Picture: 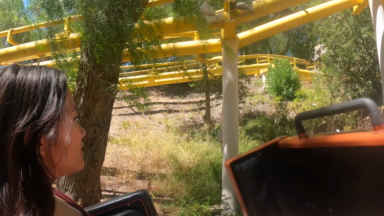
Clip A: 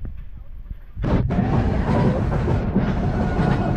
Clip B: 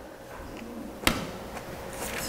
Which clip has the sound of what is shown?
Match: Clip A